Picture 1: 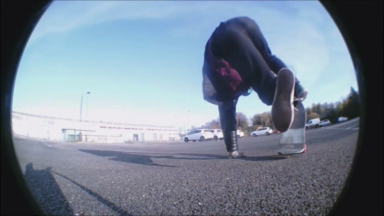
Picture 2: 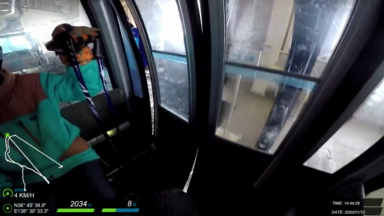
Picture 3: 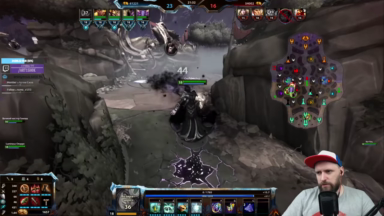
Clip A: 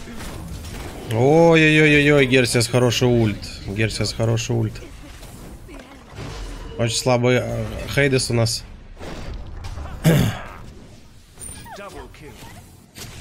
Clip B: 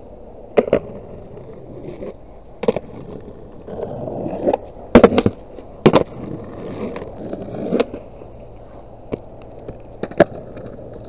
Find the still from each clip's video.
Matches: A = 3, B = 1